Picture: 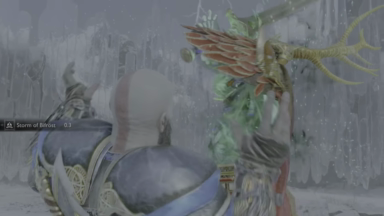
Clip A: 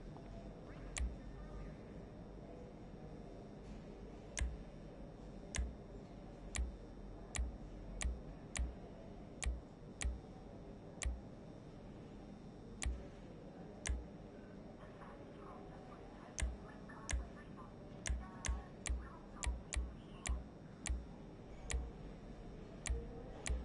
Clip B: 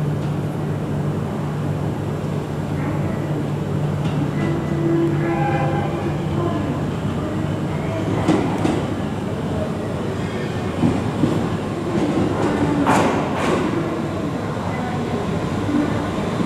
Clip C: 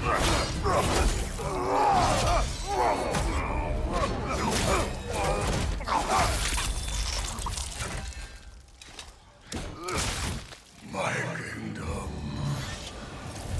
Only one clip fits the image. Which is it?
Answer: C